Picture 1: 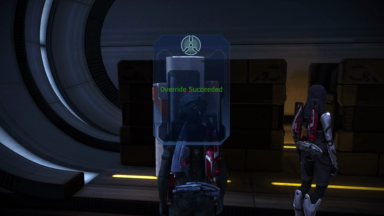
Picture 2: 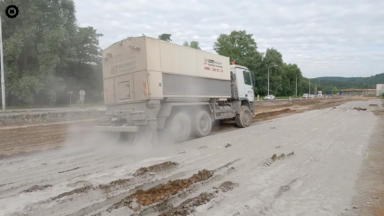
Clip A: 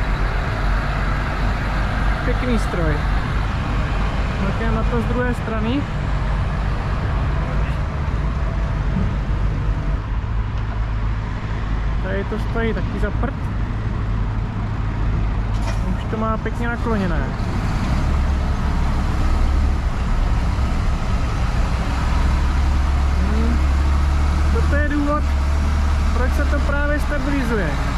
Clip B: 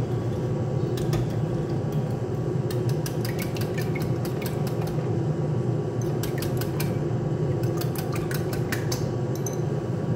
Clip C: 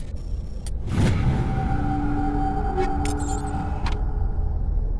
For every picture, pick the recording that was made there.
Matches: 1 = C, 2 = A